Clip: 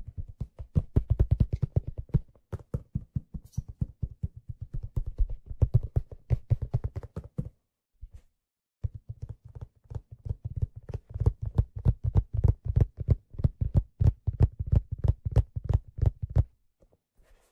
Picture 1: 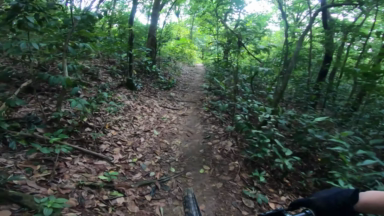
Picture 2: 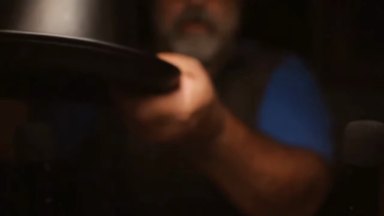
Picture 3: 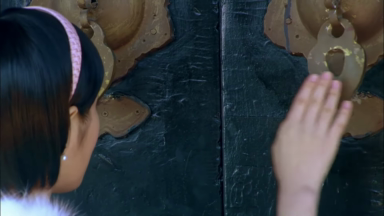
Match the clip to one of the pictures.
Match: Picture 2